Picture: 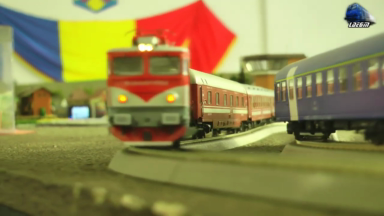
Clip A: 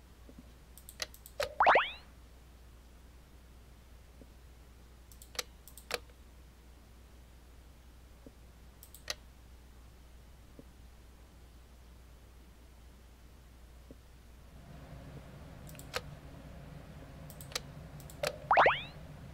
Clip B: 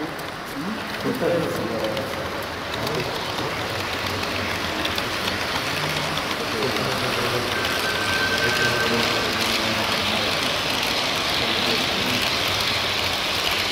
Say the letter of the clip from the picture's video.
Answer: B